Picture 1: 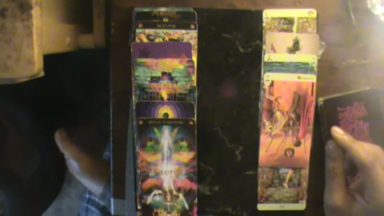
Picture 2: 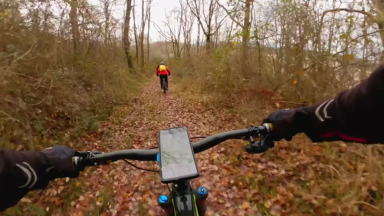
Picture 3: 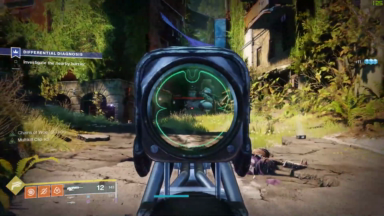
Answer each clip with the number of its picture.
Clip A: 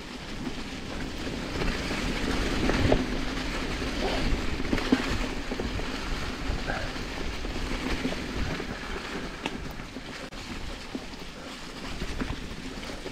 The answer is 2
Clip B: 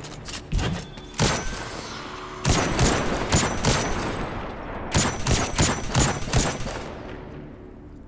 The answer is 3